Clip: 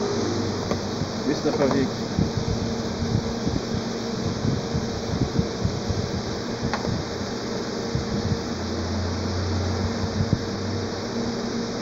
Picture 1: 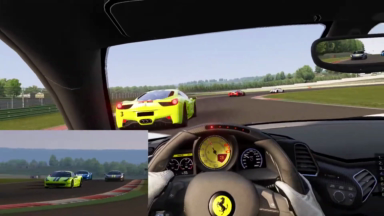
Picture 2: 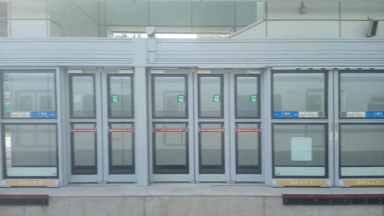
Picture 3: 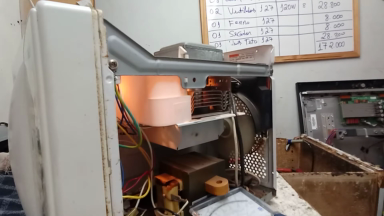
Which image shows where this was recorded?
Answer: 3